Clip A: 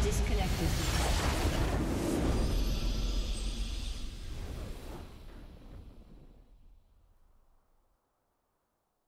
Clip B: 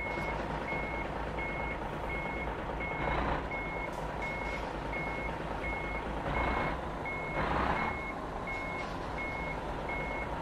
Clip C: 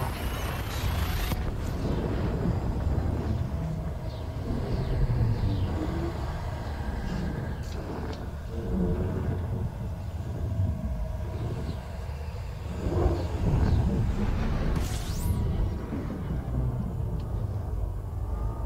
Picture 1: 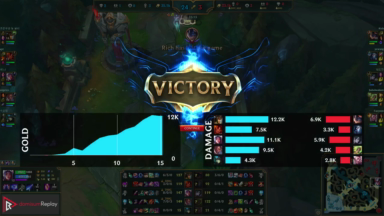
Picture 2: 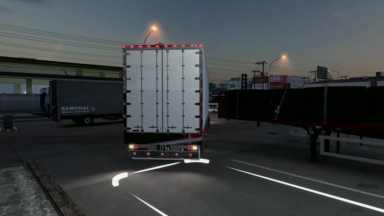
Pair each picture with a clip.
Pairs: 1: A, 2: B